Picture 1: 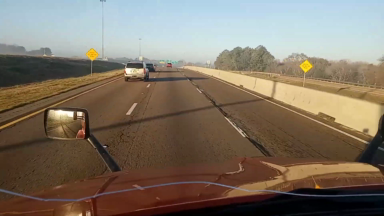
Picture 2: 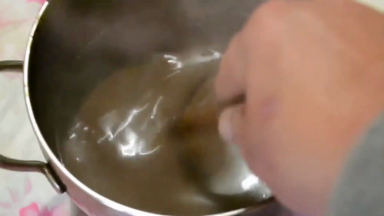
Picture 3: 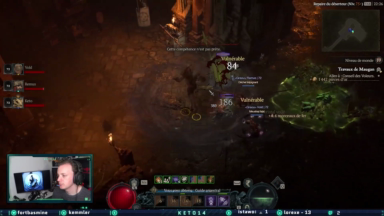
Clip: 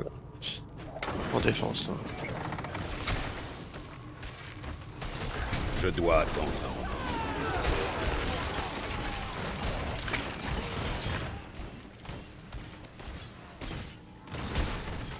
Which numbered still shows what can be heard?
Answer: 3